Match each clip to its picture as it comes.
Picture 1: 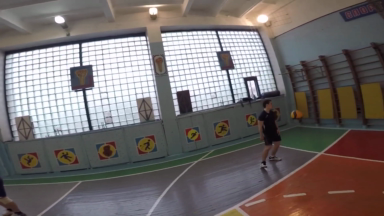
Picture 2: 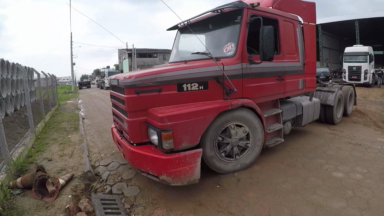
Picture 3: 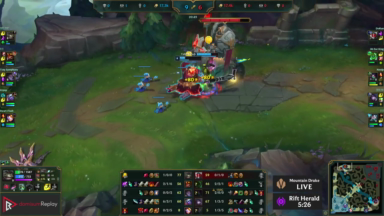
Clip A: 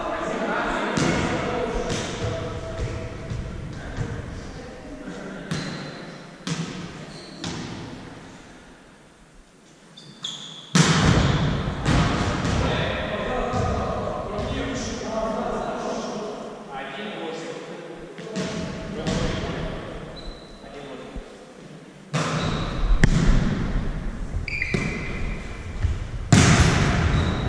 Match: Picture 1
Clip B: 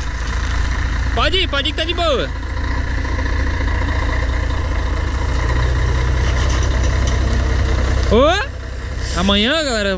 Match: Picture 2